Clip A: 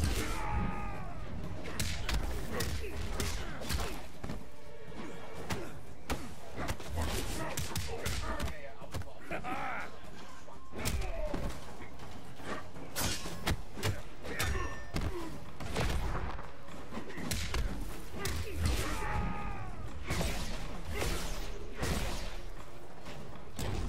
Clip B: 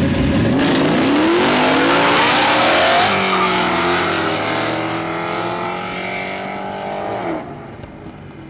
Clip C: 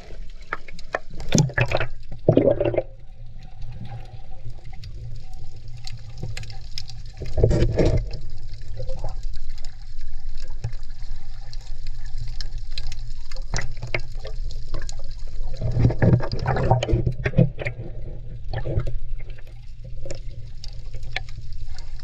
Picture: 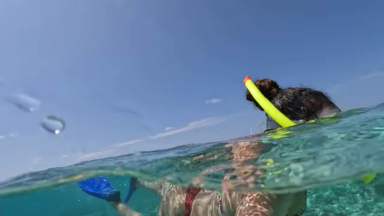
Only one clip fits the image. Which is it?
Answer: C